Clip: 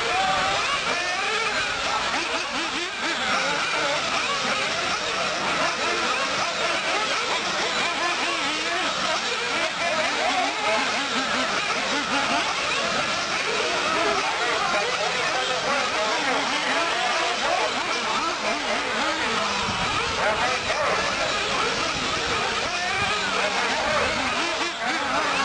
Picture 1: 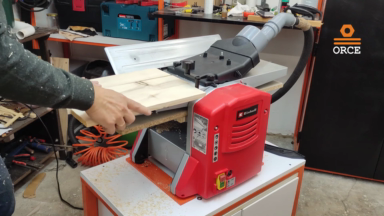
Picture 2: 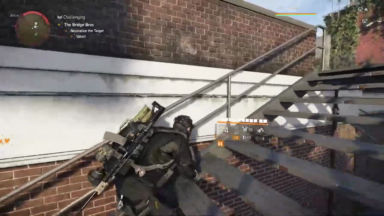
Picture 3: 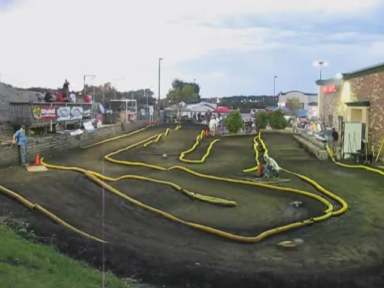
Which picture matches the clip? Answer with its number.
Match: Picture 3